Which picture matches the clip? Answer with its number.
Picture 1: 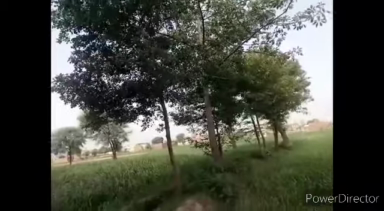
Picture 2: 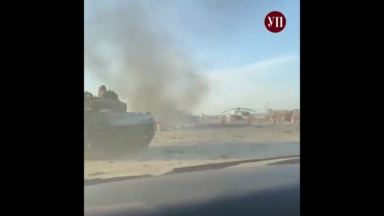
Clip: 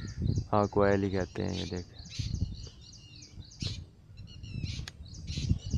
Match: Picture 1